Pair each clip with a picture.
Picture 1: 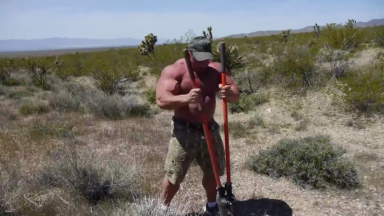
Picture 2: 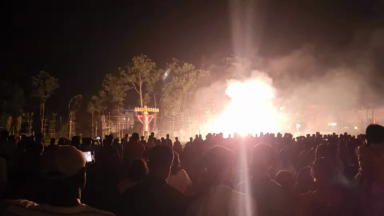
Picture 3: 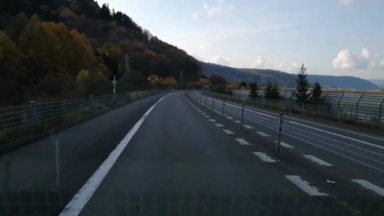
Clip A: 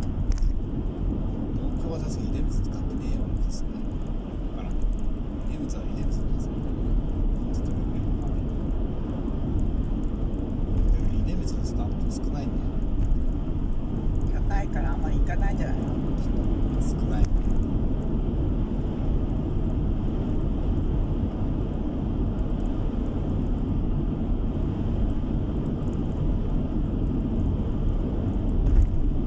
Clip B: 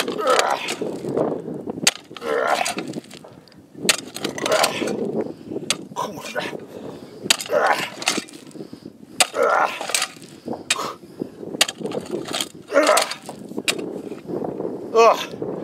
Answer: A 3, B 1